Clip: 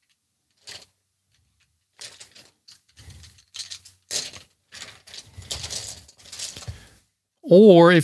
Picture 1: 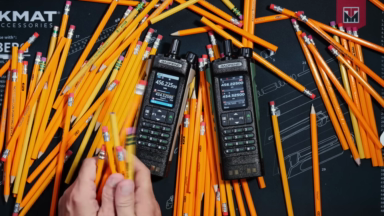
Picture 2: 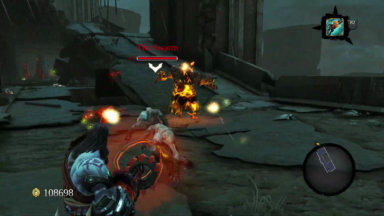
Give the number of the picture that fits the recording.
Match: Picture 1